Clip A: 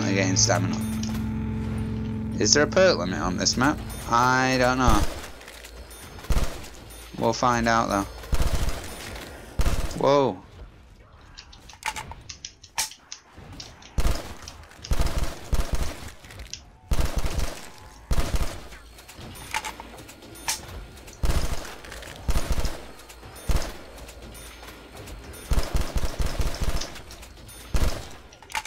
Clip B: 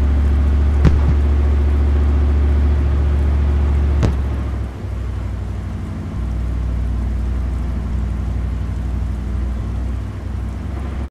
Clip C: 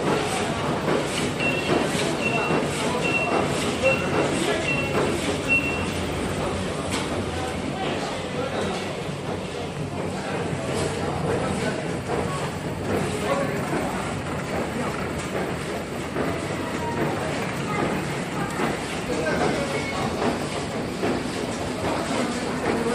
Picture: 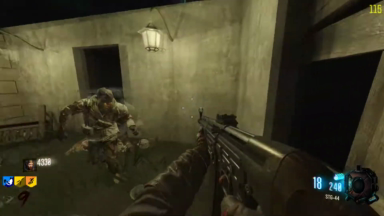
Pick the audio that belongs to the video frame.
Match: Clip A